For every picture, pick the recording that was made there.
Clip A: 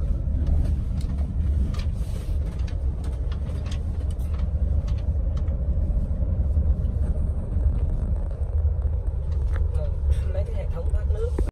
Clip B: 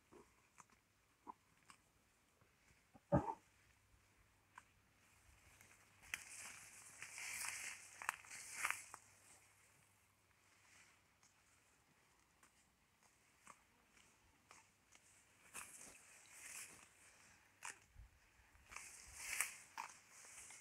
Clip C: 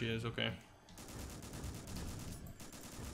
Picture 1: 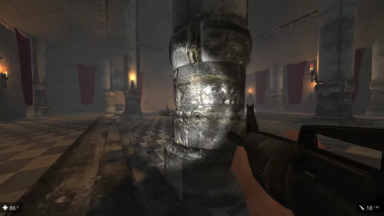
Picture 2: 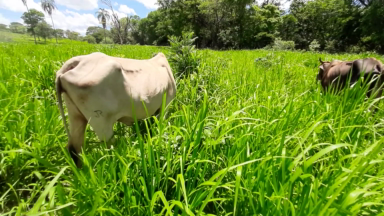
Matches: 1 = C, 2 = B